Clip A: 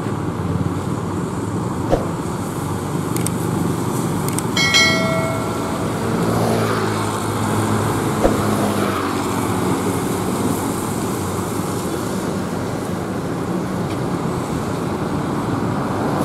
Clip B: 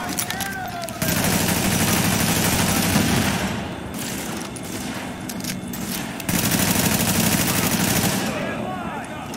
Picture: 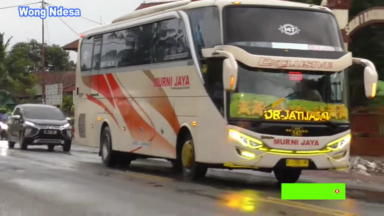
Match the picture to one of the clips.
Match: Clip A